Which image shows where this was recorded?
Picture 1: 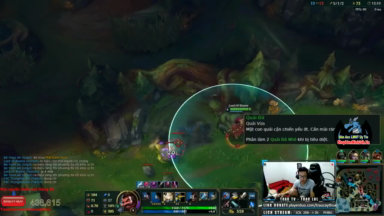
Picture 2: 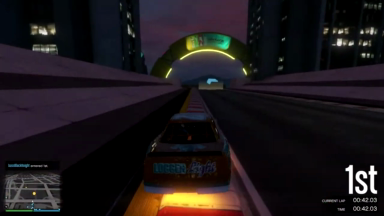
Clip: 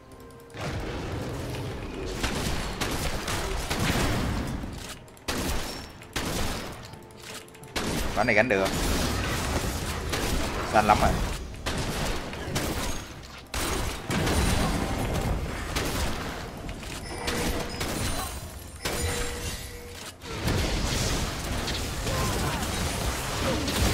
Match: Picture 1